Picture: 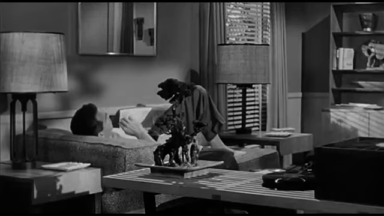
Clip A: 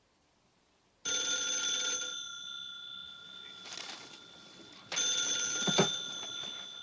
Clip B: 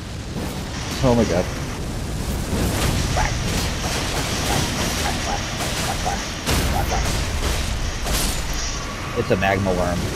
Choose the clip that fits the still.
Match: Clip A